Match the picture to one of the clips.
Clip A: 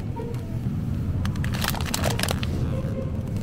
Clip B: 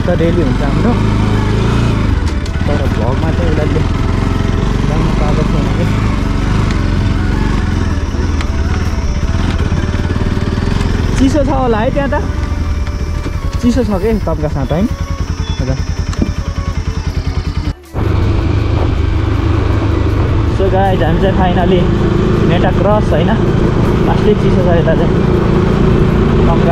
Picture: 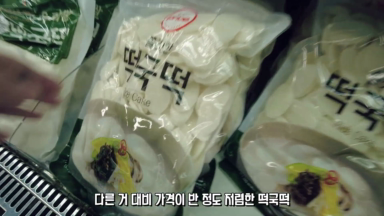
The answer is A